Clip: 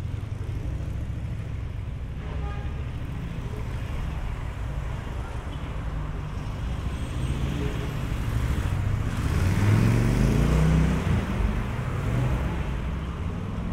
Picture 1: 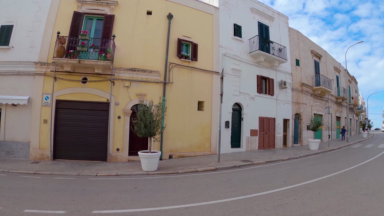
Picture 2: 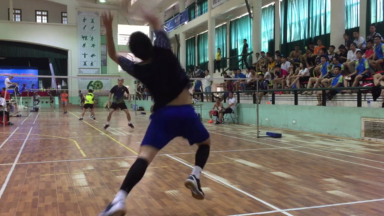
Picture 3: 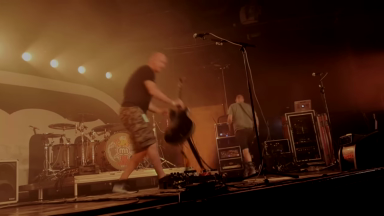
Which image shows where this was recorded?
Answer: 1